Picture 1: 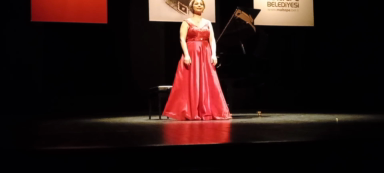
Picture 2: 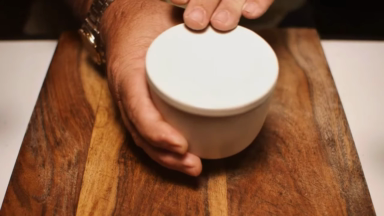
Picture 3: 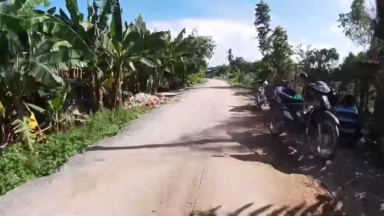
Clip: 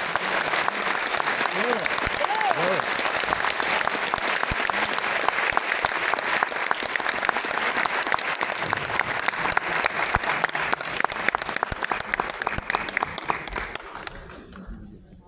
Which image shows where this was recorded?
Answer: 1